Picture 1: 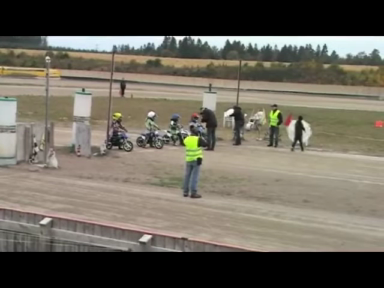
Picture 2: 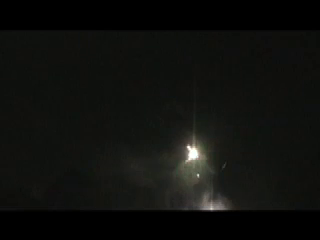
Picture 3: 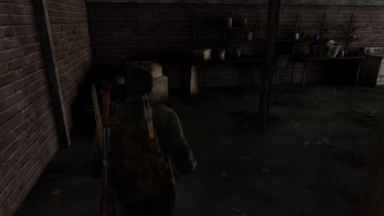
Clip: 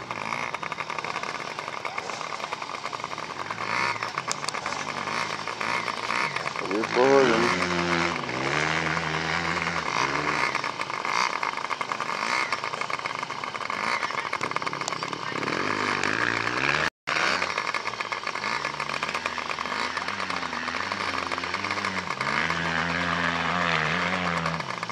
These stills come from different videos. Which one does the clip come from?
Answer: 1